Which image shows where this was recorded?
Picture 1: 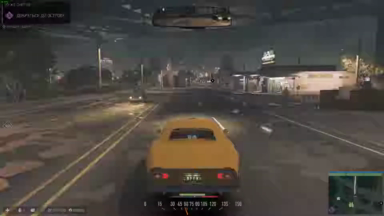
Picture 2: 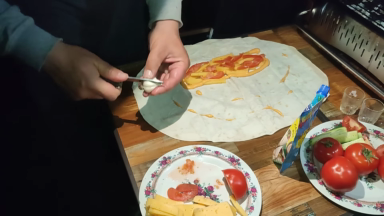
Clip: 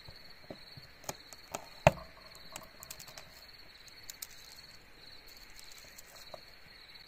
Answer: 2